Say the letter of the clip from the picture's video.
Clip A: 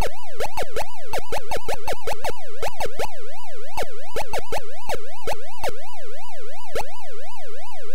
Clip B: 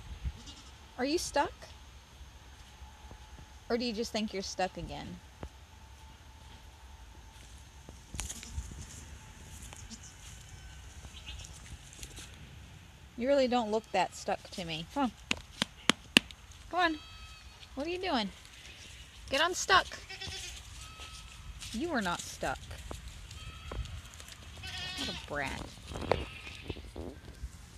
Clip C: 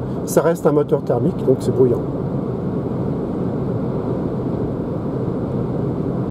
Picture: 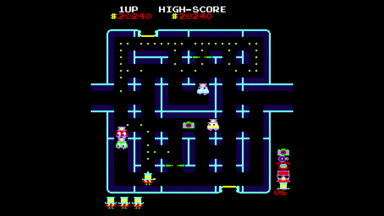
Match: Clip A